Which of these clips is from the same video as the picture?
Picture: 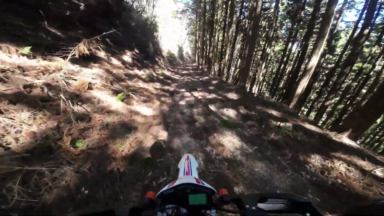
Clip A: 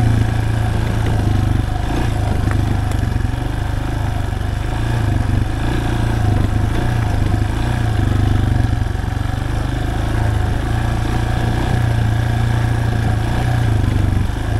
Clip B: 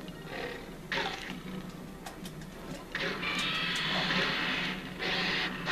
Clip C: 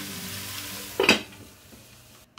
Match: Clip A